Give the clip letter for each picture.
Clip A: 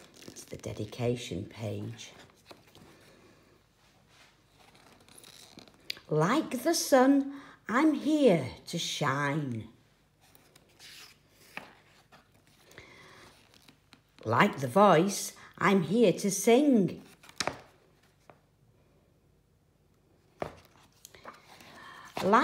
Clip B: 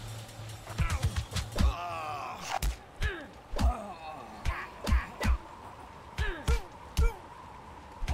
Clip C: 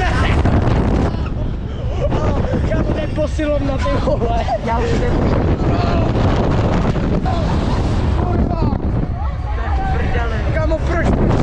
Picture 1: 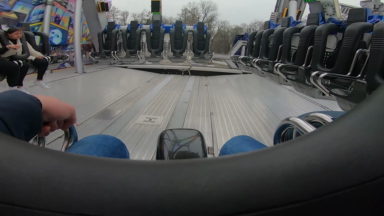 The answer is C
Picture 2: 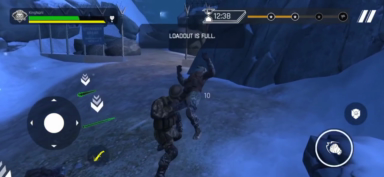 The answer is B